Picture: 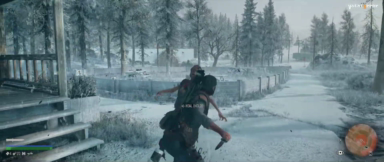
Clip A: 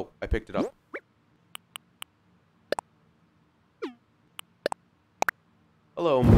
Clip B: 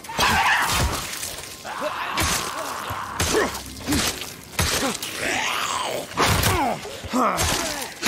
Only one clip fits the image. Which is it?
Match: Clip B